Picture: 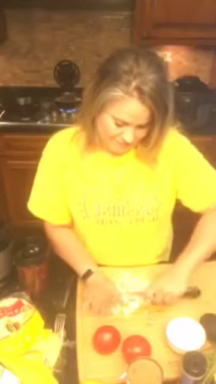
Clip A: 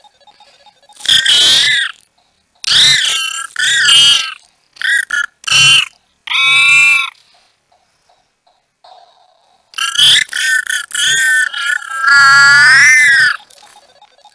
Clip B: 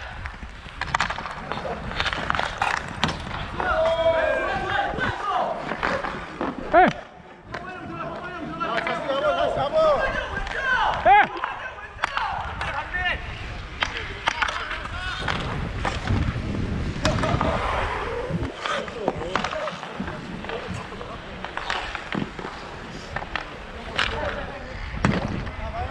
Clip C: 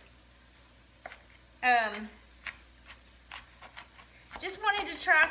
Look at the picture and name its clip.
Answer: C